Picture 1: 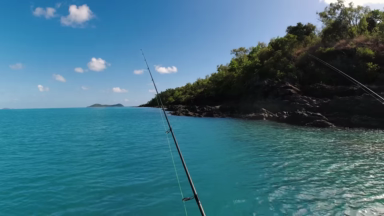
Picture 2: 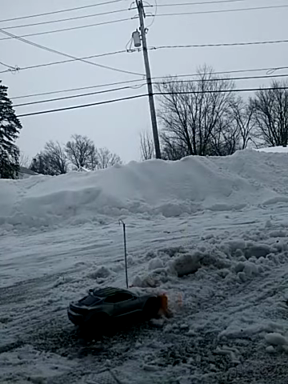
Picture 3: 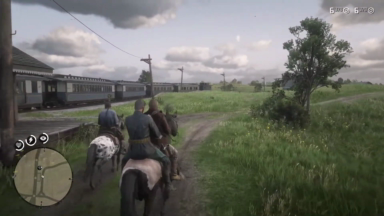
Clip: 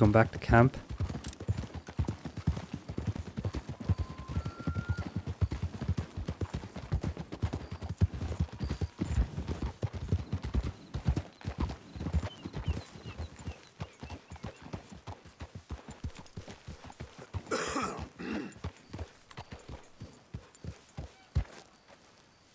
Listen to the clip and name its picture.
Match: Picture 3